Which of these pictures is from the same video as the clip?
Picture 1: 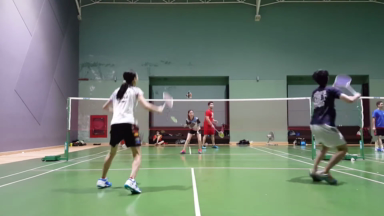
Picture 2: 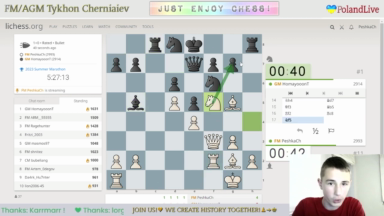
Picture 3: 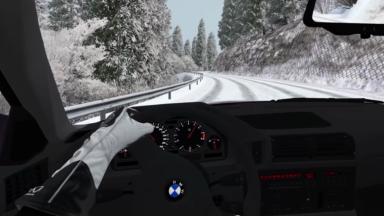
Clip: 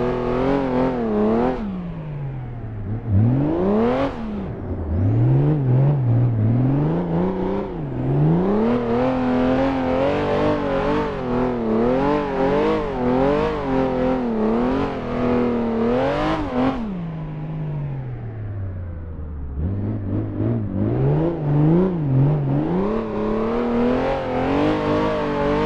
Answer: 3